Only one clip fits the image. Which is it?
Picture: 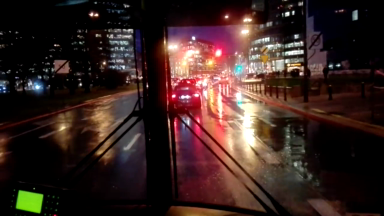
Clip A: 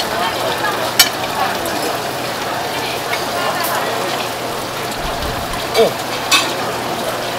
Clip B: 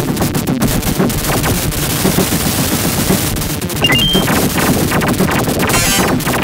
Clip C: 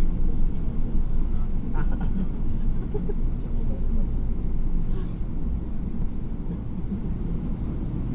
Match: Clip C